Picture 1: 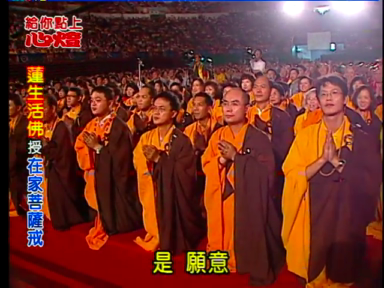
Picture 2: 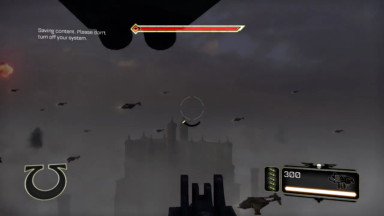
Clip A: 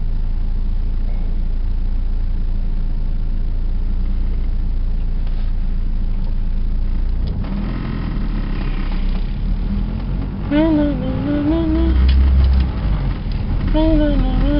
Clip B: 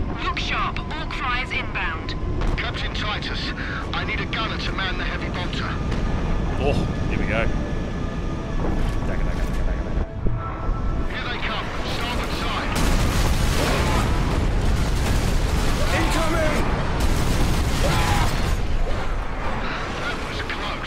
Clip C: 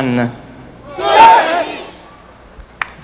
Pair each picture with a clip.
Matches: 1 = C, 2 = B